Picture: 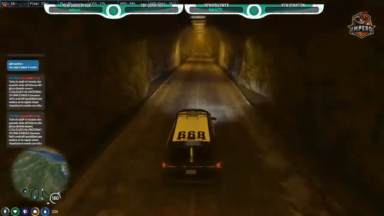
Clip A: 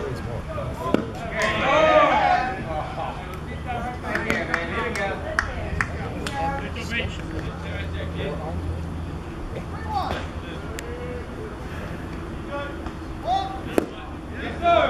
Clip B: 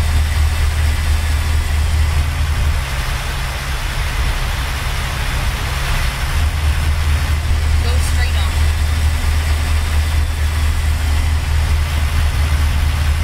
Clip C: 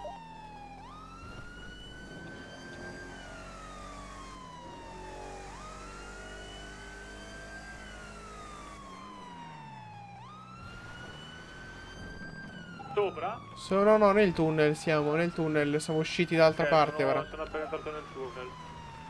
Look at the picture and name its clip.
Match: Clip C